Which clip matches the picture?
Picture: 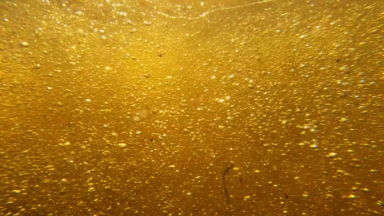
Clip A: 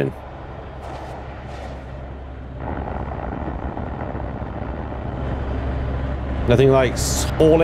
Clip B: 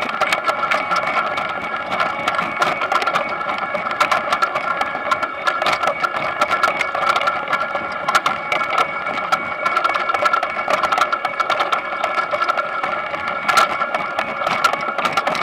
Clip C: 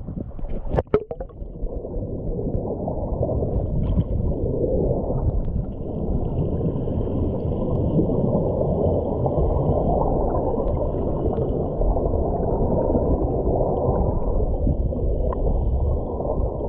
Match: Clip C